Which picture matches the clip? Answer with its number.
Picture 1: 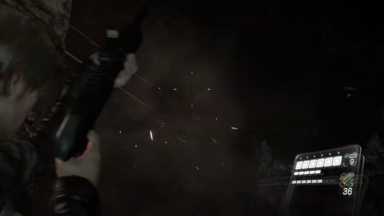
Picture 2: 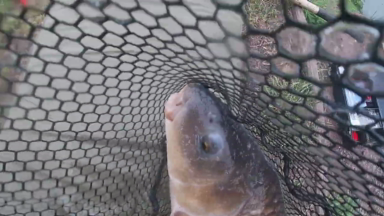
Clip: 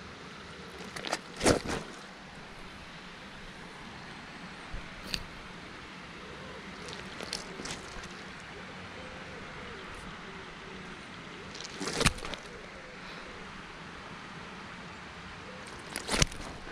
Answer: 2